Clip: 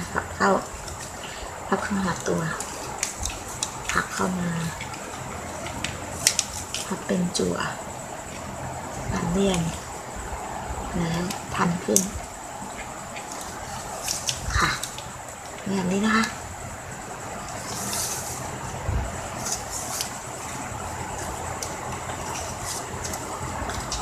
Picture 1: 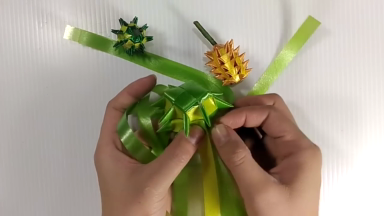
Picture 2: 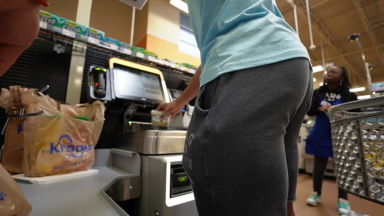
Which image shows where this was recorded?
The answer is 1